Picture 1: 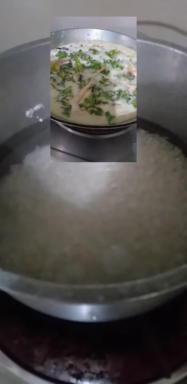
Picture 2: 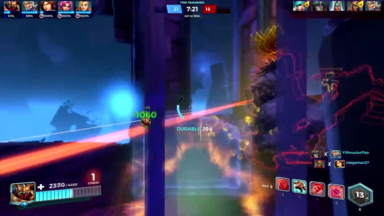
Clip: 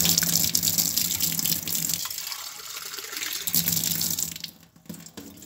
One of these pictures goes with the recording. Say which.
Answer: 1